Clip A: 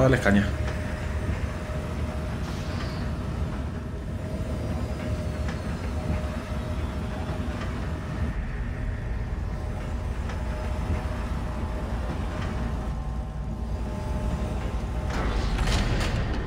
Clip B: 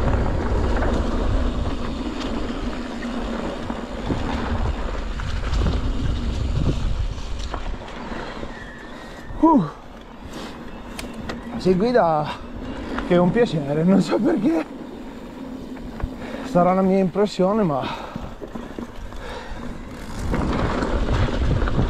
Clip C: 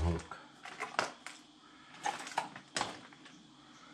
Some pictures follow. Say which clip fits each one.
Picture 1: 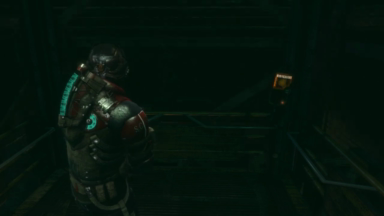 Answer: A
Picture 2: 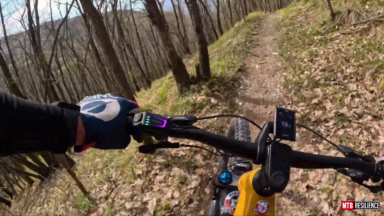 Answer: B